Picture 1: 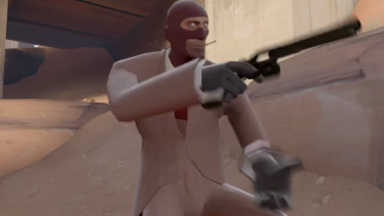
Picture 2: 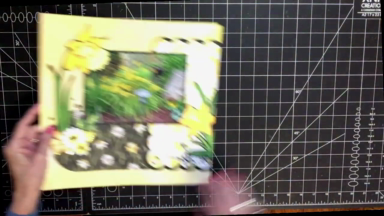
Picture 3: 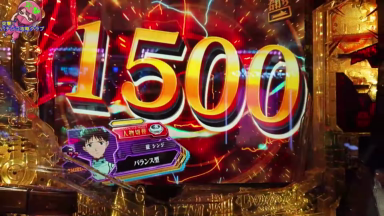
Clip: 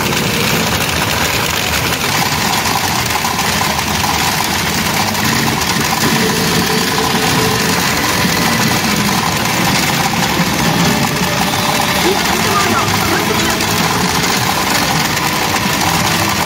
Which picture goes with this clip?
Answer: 3